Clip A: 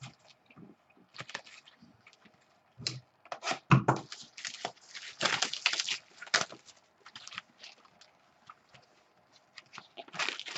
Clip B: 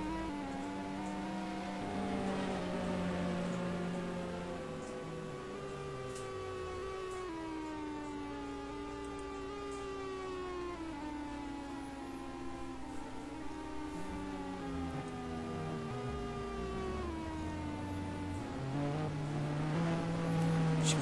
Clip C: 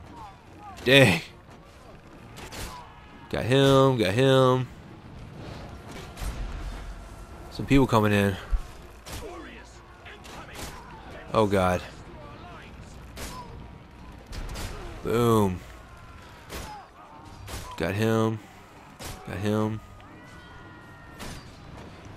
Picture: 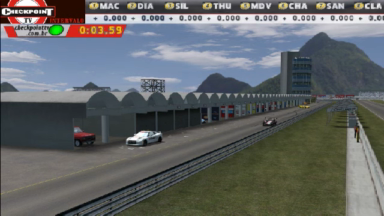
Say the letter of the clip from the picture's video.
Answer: B